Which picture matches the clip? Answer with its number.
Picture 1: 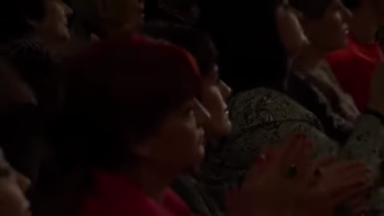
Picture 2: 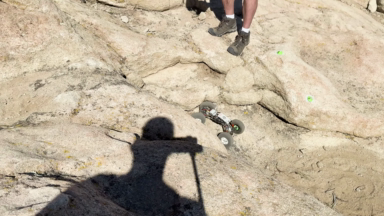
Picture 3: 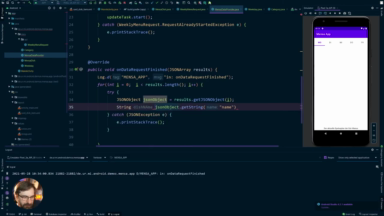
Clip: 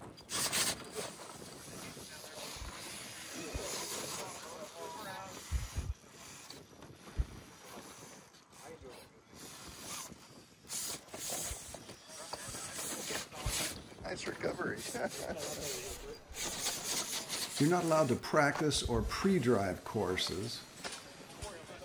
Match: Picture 2